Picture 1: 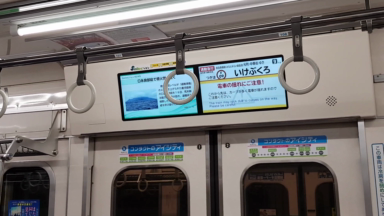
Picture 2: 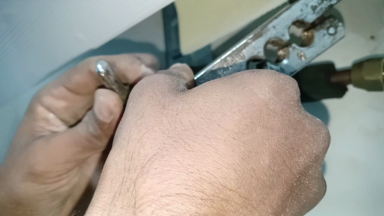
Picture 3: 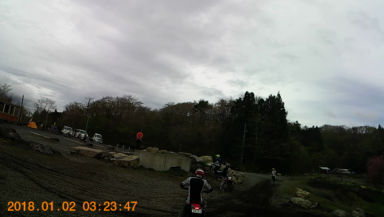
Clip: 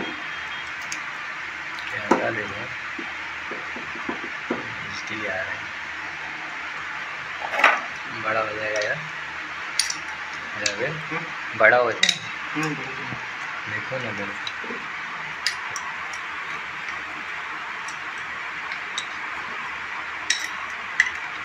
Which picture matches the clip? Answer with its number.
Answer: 2